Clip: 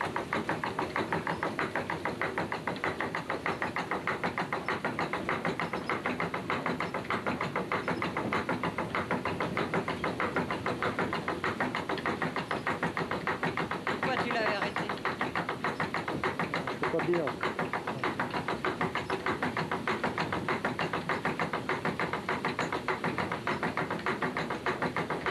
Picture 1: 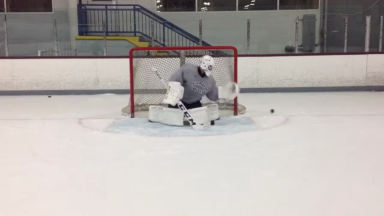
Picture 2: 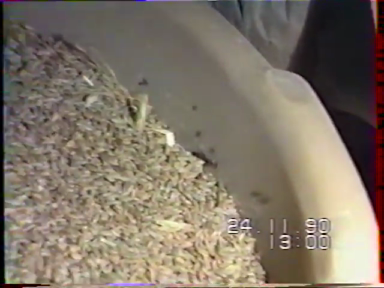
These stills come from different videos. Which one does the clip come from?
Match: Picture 2